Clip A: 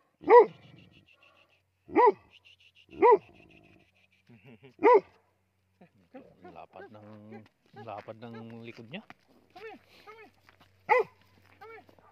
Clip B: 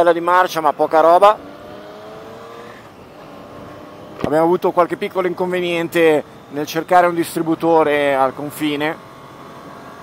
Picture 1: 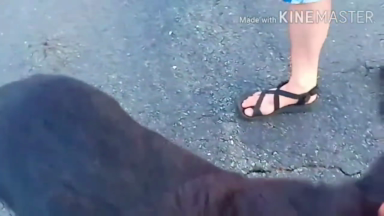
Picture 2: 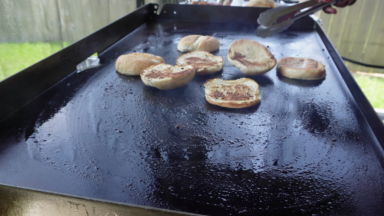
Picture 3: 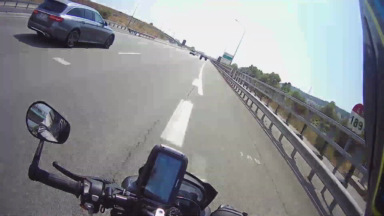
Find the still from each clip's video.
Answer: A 1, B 3